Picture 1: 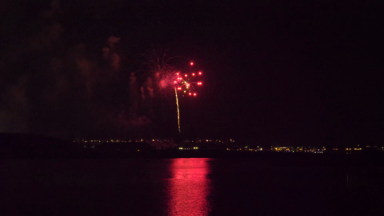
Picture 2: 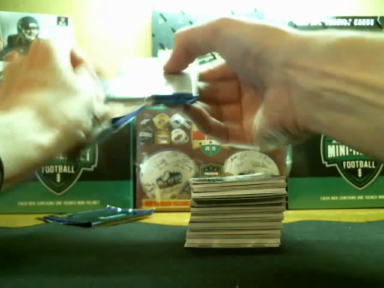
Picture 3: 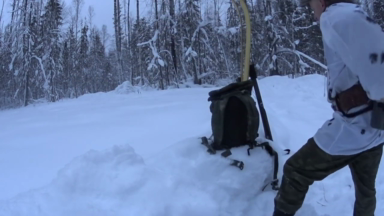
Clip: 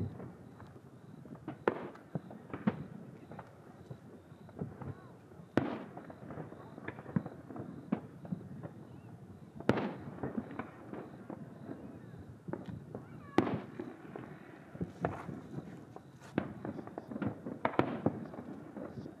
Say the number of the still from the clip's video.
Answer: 1